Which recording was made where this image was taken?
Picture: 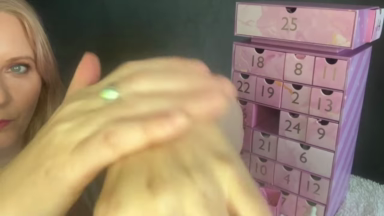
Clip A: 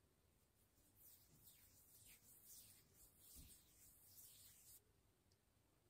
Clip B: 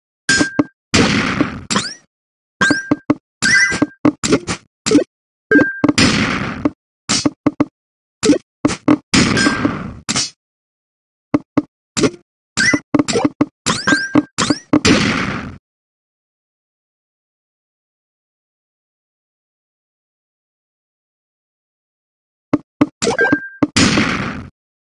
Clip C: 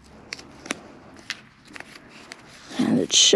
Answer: A